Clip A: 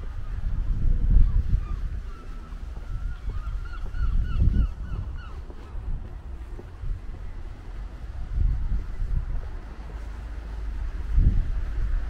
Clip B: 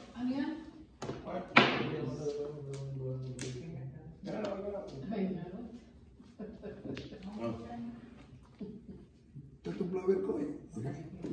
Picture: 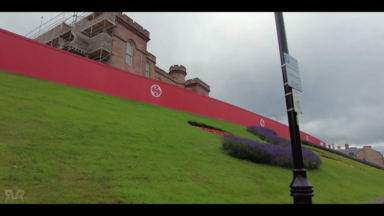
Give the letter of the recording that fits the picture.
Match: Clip A